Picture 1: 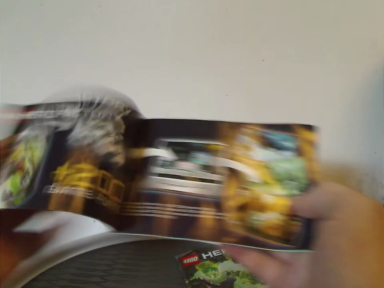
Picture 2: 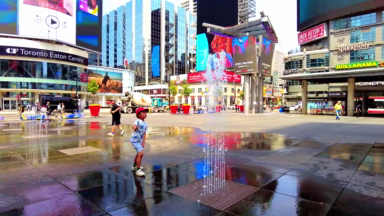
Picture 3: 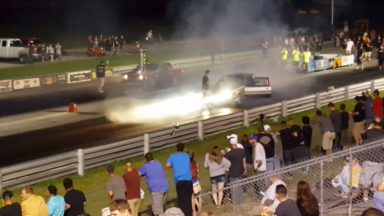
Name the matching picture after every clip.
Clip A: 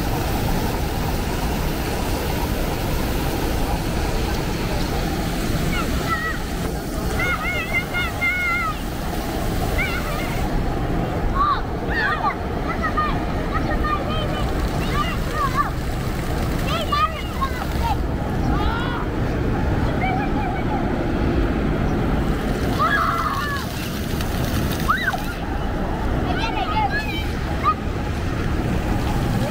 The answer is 2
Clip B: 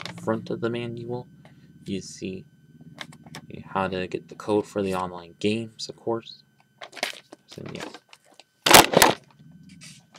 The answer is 1